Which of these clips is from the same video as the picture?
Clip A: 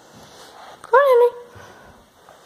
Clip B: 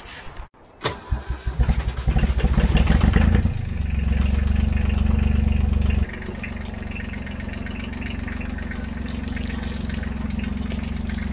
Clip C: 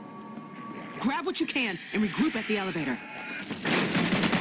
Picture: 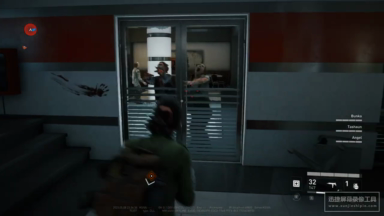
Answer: C